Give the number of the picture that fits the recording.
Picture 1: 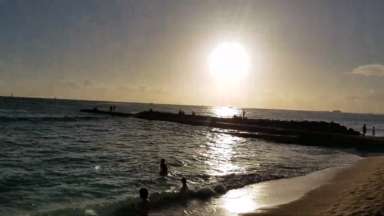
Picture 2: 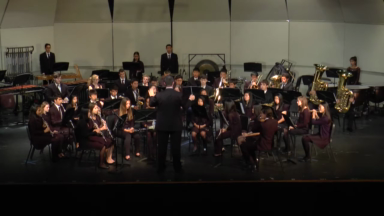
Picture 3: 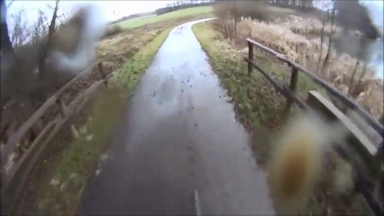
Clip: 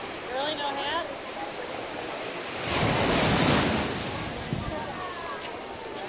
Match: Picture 1